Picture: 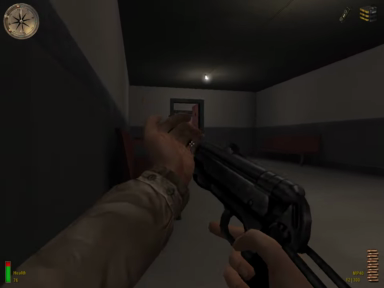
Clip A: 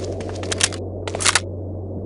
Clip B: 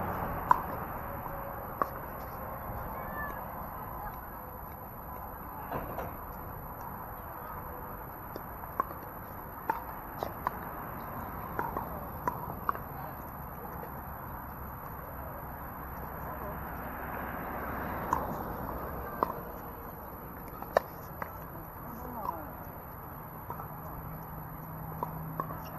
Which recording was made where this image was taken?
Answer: A